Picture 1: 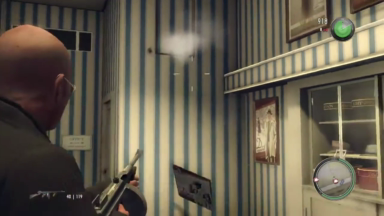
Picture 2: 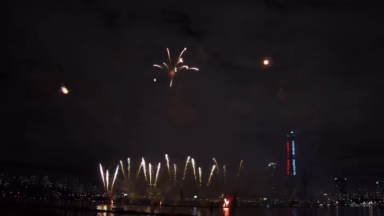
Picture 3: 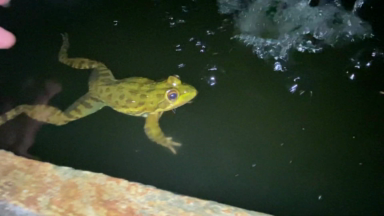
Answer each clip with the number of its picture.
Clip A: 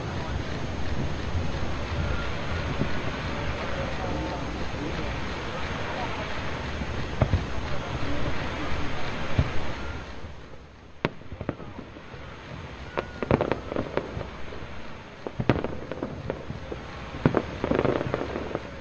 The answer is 2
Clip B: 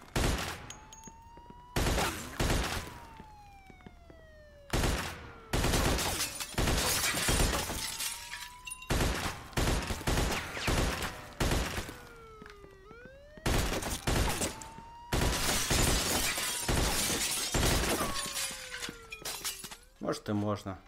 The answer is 1